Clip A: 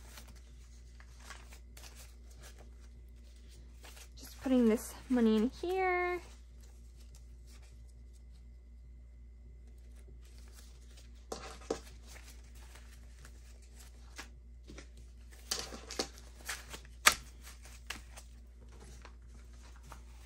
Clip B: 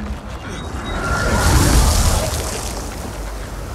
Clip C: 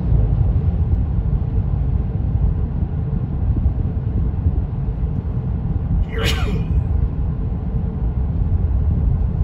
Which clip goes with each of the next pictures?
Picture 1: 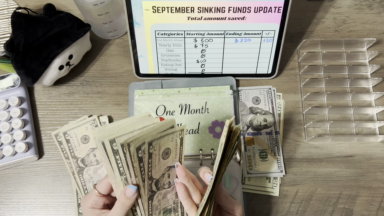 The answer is A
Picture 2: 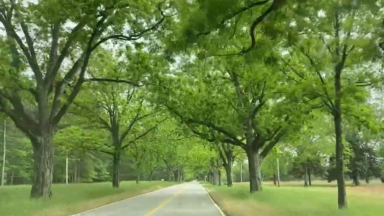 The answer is C